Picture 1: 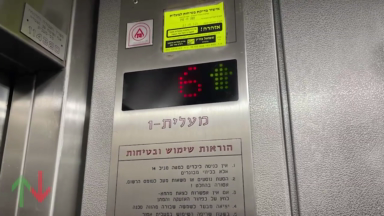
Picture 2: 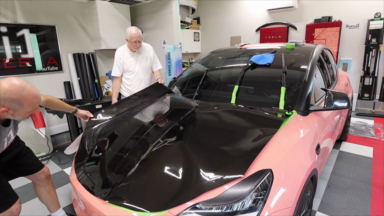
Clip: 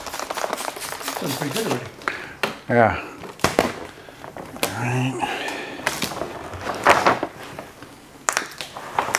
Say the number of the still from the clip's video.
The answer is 2